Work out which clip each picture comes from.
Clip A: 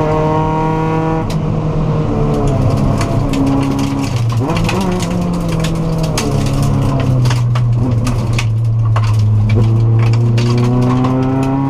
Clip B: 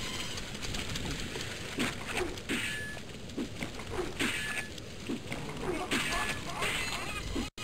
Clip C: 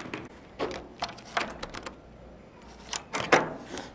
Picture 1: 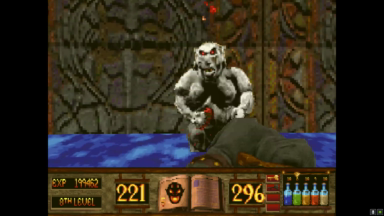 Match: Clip B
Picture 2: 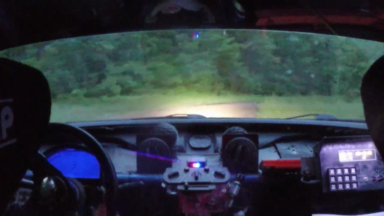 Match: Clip A